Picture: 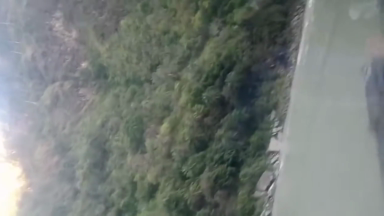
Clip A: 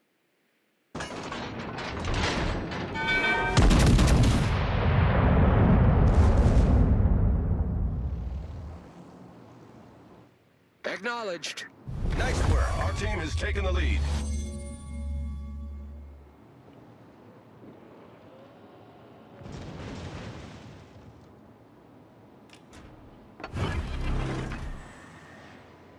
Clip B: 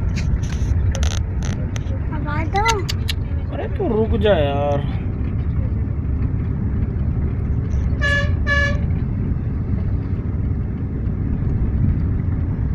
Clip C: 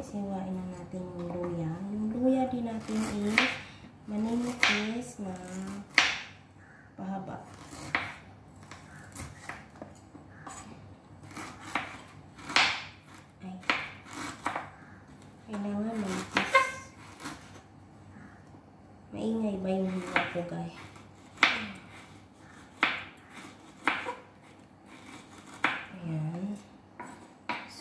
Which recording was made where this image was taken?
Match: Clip B